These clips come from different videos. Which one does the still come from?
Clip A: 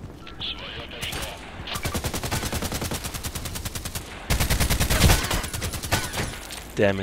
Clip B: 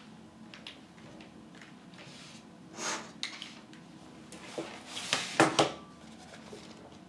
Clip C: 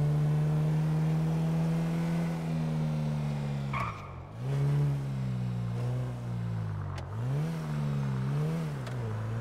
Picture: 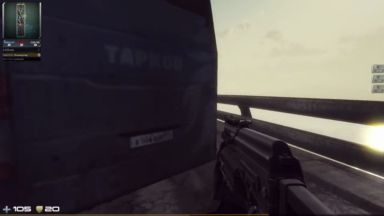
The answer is A